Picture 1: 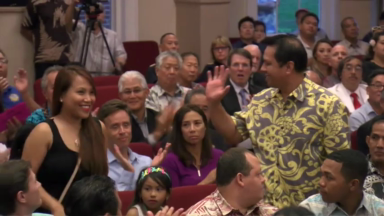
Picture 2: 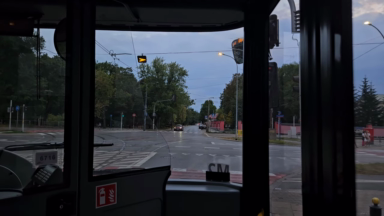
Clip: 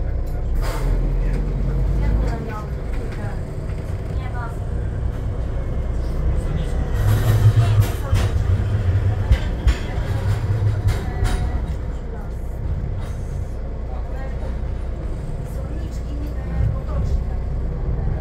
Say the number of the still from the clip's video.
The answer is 2